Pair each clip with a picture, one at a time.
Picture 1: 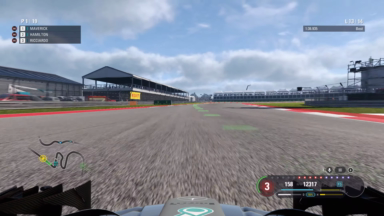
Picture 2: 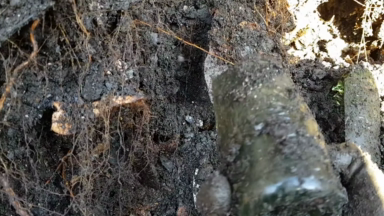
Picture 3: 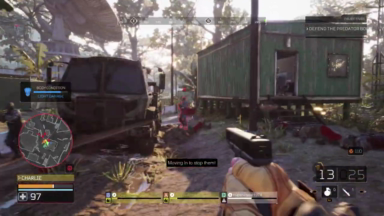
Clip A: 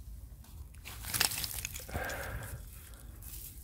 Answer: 2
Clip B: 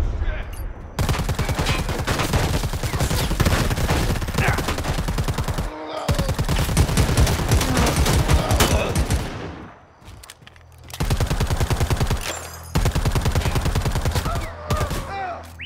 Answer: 3